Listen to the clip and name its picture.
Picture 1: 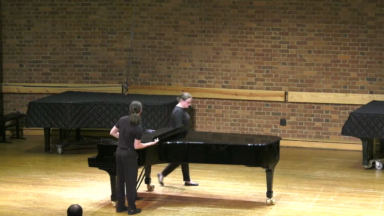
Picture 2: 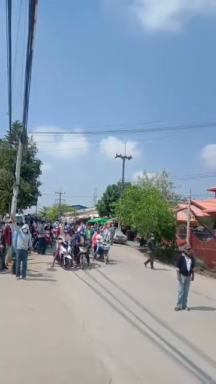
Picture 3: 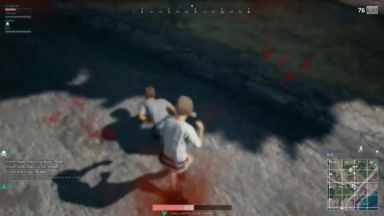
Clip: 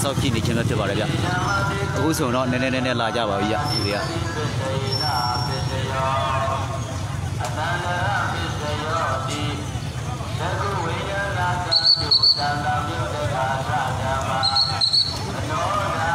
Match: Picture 2